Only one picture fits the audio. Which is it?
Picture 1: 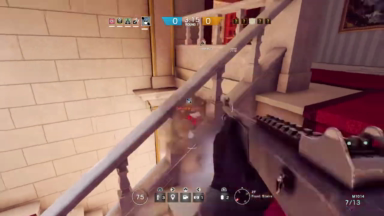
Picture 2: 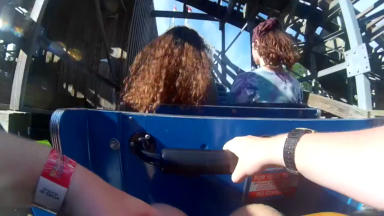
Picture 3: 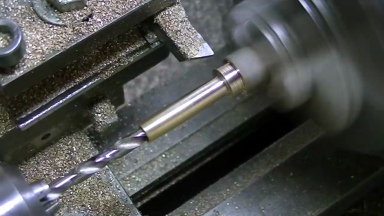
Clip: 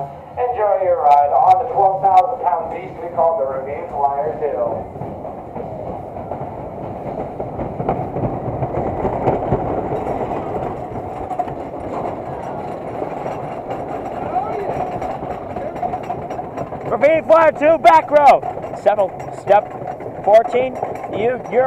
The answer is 2